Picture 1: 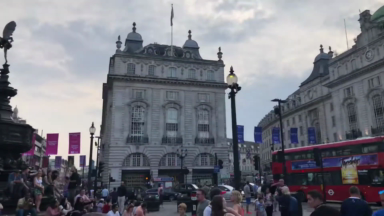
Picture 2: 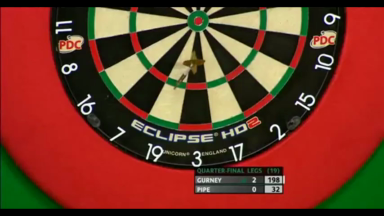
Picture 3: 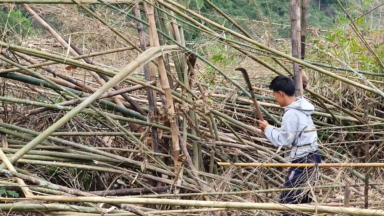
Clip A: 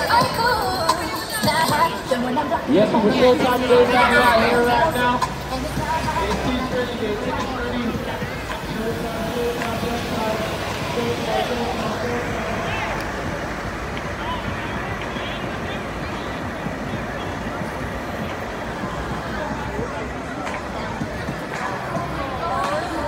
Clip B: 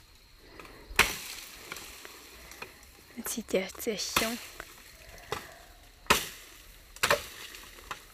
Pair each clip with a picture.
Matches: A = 1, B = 3